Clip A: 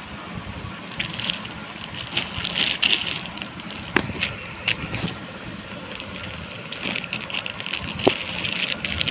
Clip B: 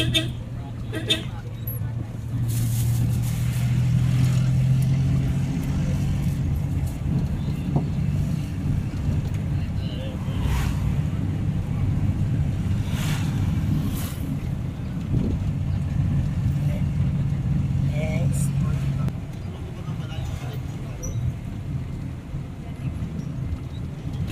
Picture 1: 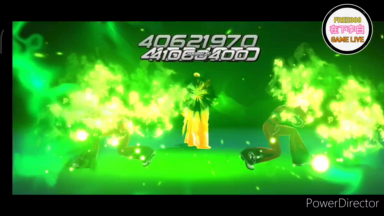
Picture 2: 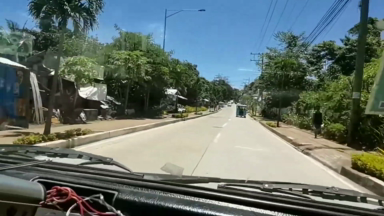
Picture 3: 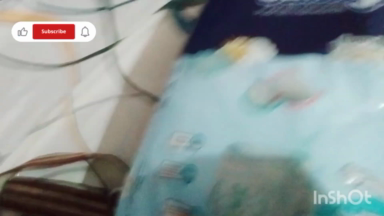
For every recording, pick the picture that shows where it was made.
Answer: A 3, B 2